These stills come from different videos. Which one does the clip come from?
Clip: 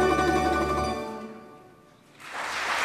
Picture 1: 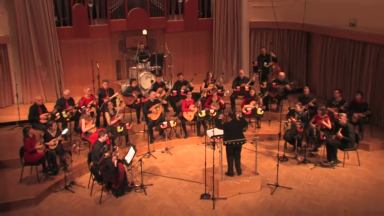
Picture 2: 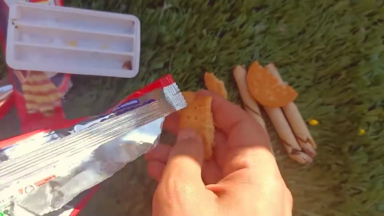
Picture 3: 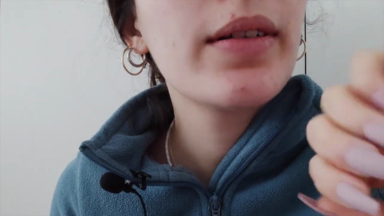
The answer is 1